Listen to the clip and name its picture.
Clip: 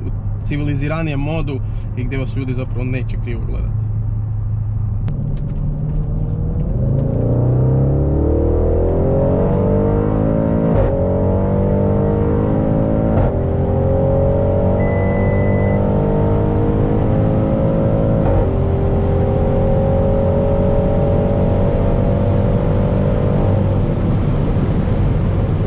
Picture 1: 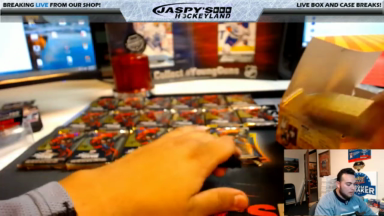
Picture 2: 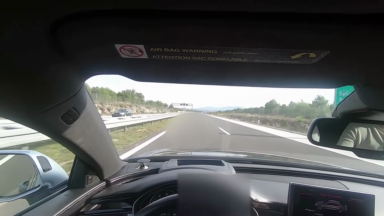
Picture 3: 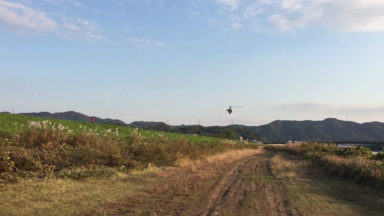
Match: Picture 2